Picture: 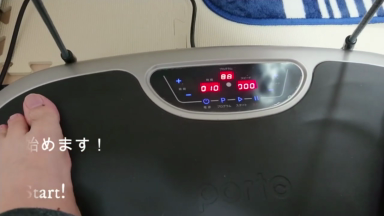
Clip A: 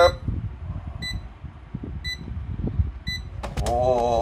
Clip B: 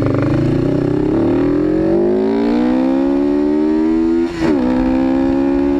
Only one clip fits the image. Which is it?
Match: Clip A